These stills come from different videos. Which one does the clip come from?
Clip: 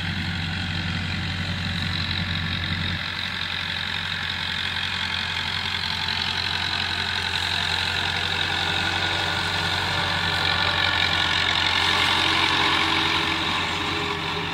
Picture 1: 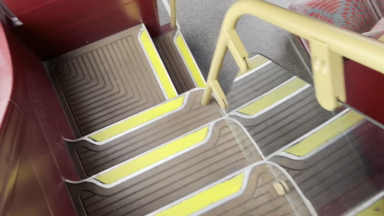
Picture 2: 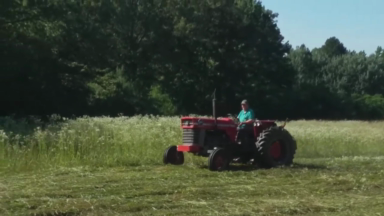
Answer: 2